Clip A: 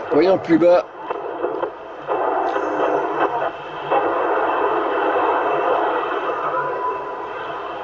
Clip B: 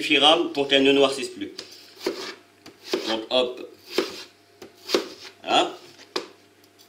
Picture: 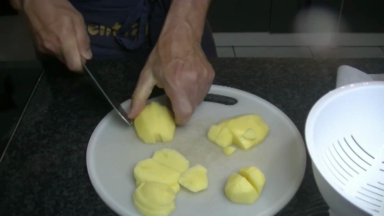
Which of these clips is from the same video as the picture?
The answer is B